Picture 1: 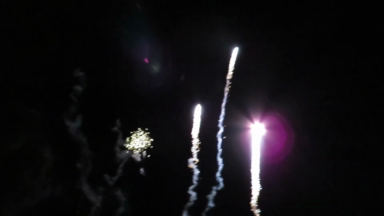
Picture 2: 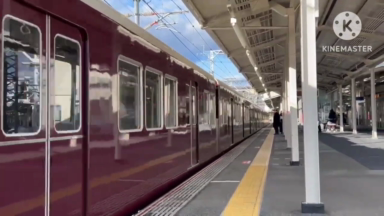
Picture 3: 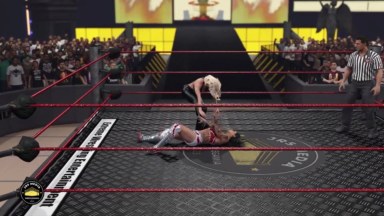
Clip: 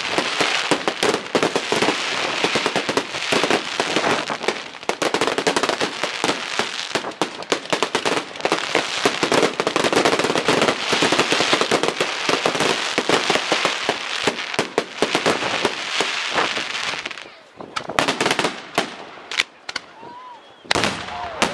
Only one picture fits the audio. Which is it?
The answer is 1